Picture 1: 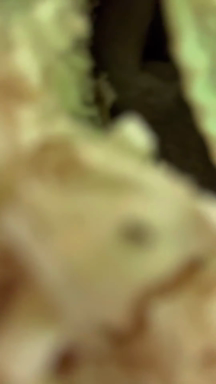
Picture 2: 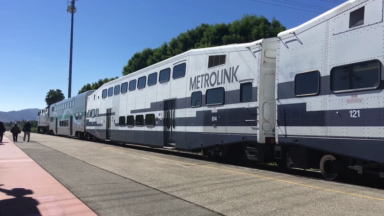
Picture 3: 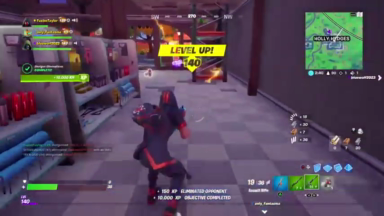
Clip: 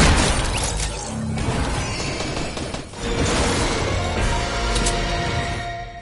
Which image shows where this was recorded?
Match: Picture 3